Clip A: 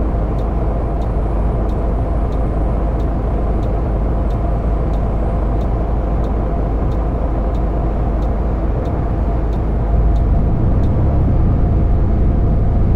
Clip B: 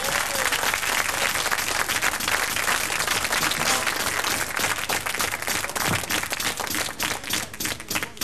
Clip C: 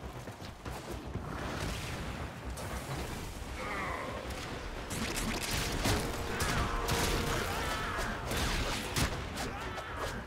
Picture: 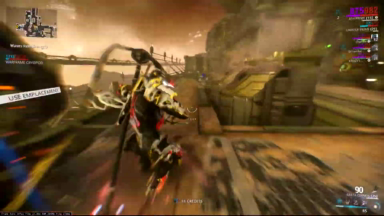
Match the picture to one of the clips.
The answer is C